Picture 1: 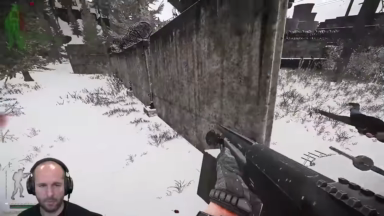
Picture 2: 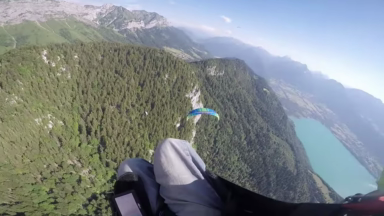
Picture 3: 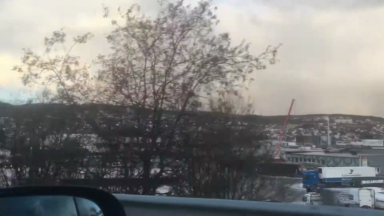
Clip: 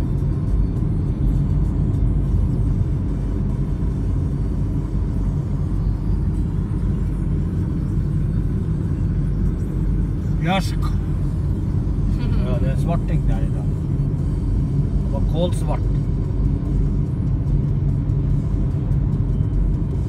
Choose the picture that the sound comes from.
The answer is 3